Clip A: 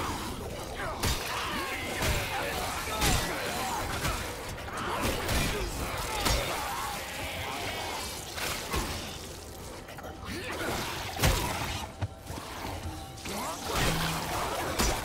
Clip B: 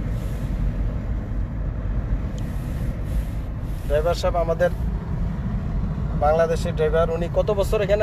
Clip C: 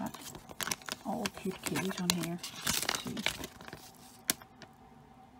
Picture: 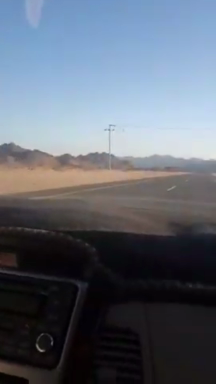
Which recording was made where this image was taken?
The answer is B